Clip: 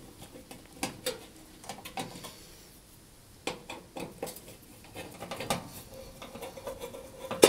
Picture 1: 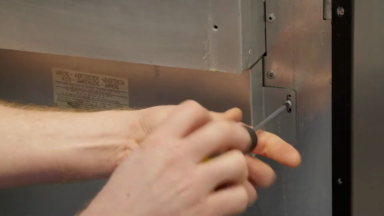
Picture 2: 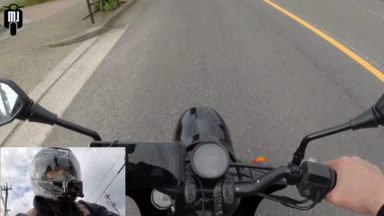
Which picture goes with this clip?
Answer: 1